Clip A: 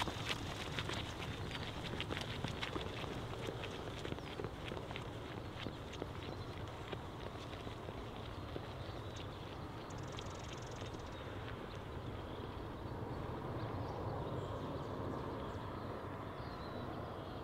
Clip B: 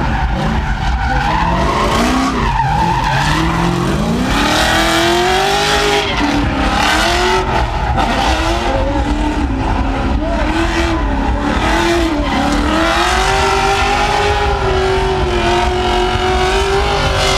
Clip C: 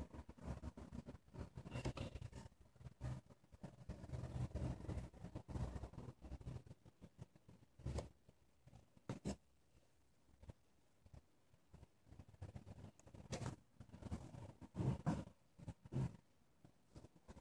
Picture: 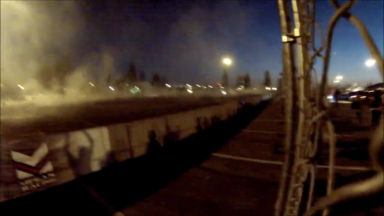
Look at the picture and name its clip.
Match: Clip B